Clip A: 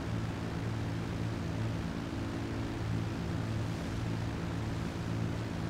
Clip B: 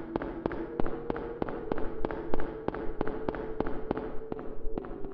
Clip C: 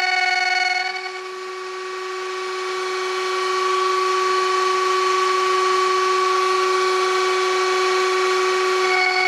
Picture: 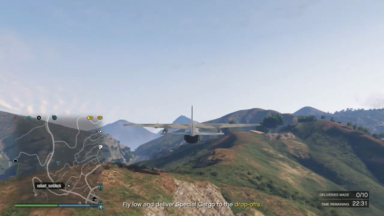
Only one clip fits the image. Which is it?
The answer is A